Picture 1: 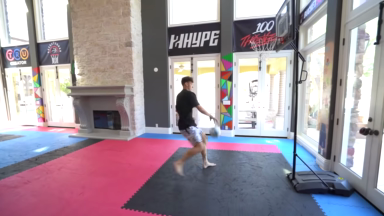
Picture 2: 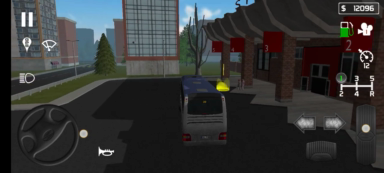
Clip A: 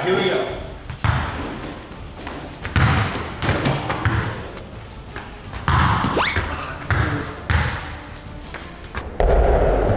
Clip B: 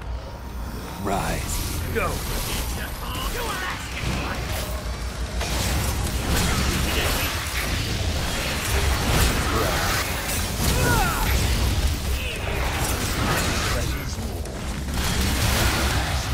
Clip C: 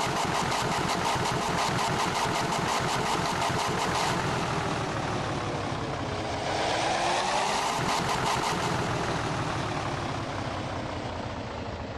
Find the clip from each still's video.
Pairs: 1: A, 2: C